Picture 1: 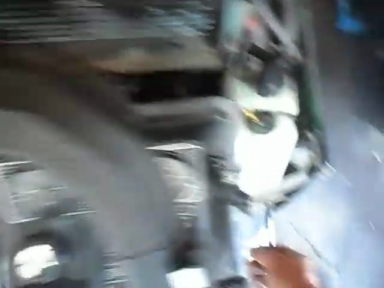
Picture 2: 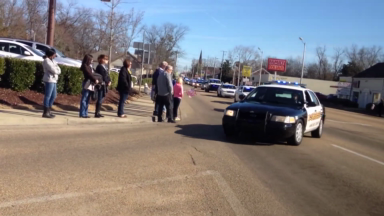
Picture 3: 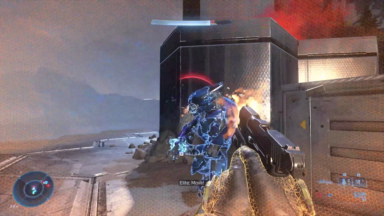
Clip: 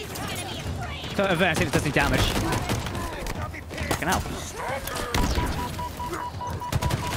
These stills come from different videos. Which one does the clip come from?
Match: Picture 3